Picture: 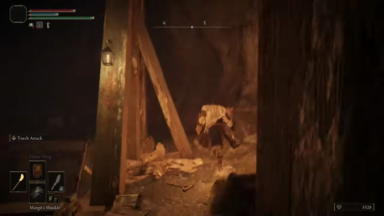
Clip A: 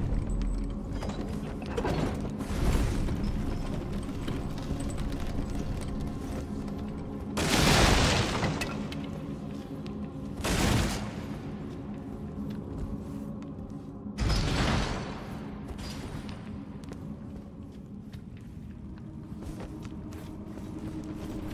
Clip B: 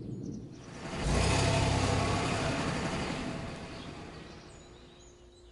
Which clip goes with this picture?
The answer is A